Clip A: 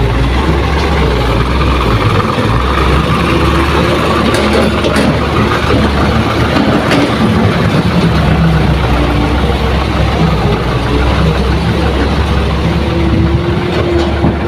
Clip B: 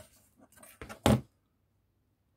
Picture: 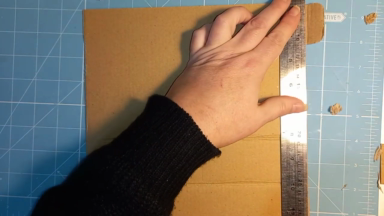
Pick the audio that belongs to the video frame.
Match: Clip B